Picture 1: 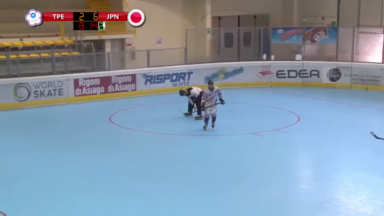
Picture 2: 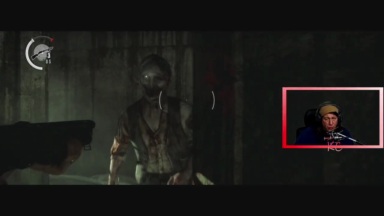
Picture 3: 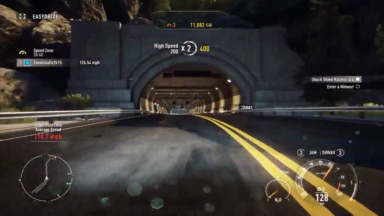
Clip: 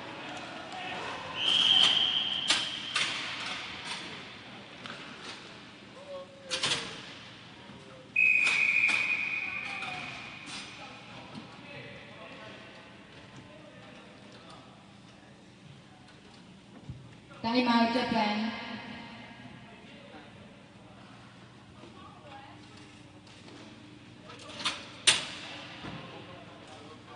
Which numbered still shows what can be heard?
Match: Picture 1